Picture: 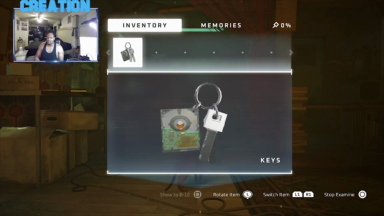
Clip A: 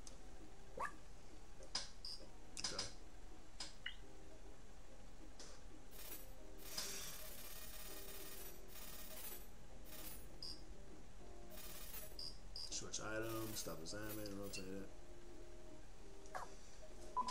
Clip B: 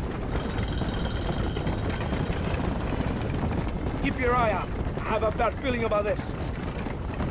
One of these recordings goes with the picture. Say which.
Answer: A